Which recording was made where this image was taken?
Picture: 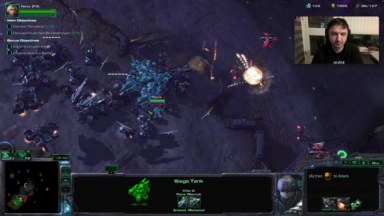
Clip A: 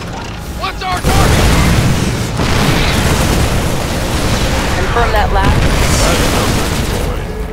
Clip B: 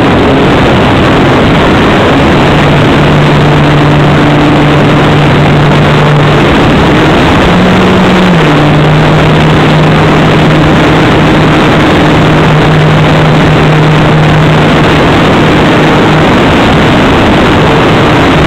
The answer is A